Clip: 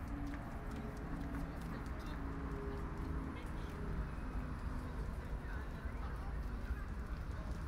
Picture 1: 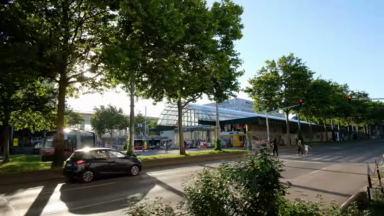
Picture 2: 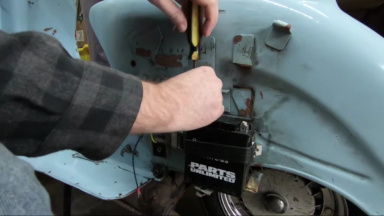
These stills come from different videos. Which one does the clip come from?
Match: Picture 1